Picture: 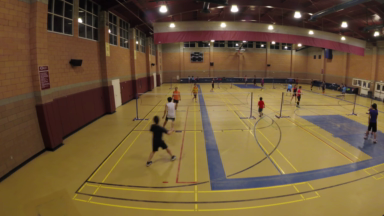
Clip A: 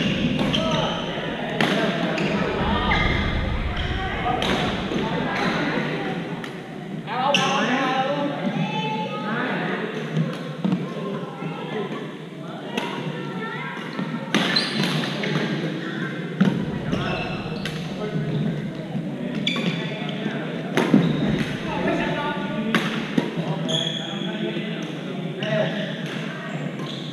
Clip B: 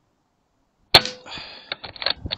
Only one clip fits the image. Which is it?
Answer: A